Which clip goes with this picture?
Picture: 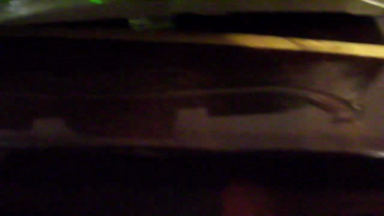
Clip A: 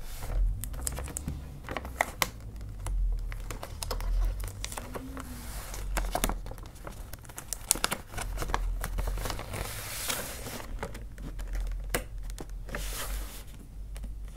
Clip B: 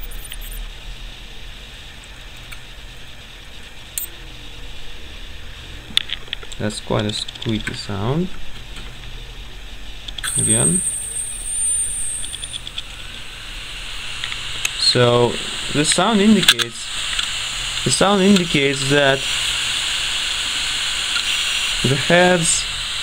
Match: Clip B